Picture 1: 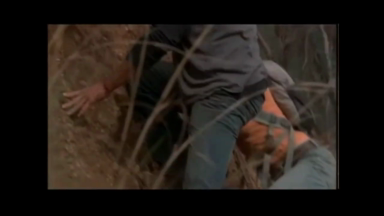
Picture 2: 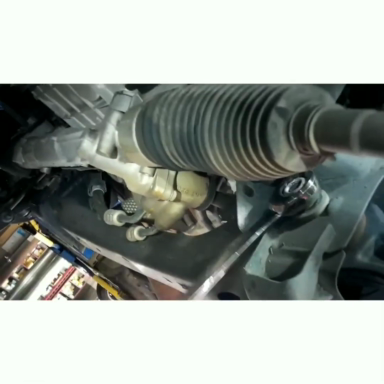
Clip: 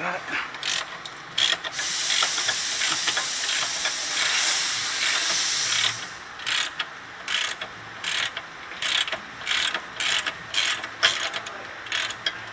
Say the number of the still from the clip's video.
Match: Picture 2